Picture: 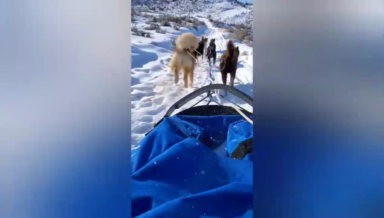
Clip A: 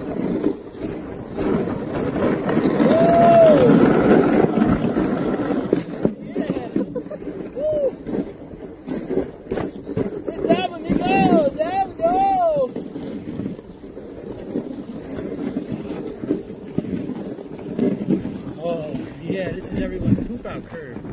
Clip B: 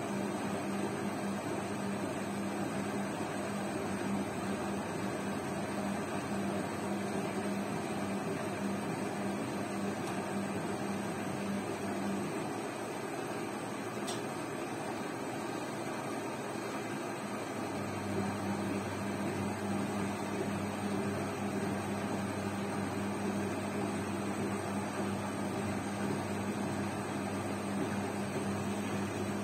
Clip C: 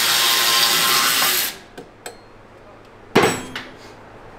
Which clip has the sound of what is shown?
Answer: A